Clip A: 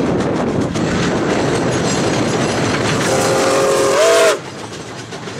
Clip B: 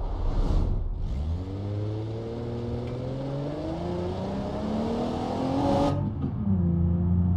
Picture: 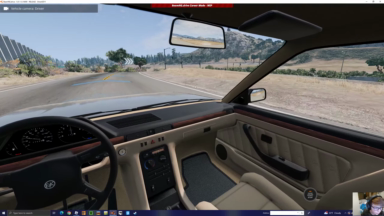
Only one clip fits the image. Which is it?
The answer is B